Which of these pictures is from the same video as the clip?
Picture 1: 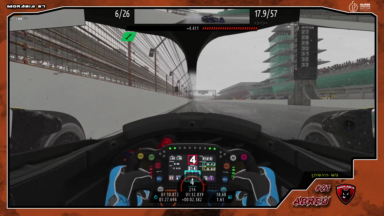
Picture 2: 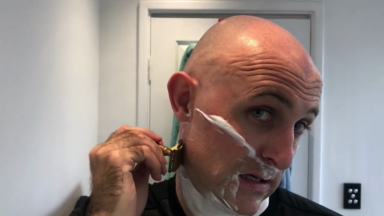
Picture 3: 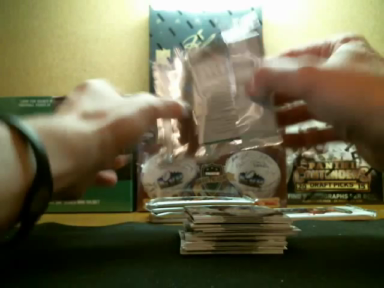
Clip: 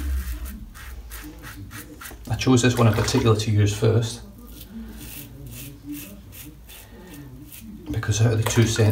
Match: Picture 2